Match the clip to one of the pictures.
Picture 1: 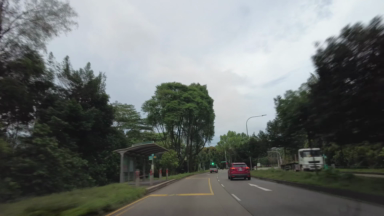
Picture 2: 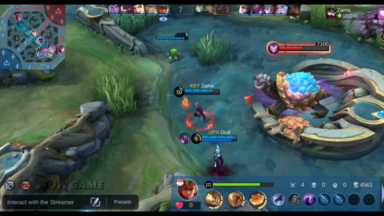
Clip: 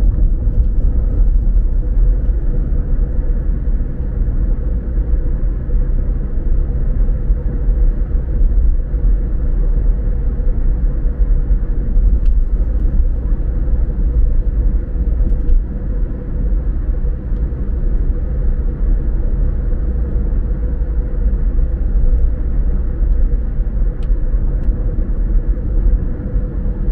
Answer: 1